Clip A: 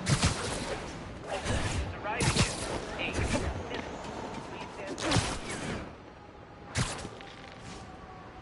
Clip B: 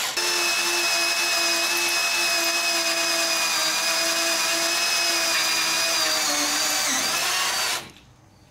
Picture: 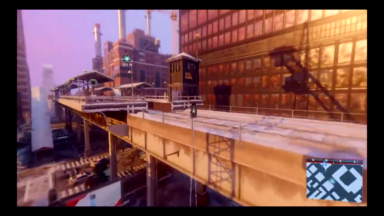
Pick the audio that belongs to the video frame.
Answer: A